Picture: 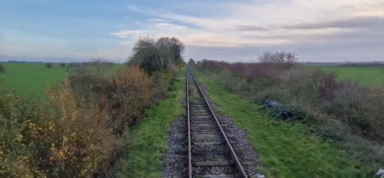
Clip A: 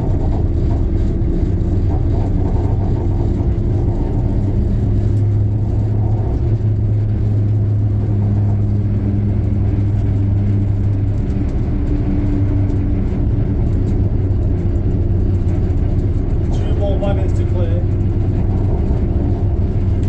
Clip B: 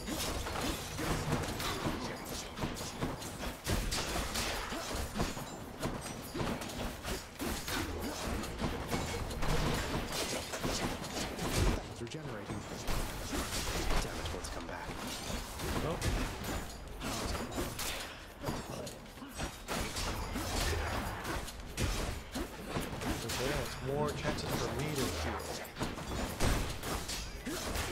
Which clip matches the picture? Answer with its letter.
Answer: A